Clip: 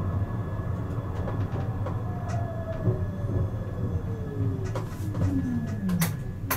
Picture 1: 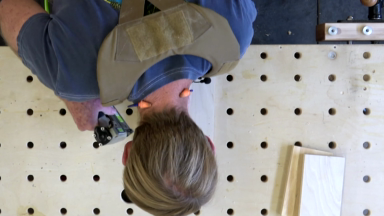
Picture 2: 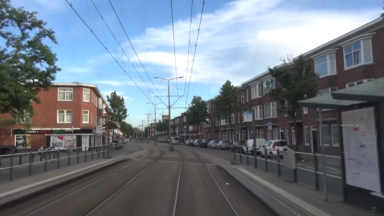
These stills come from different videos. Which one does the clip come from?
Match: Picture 2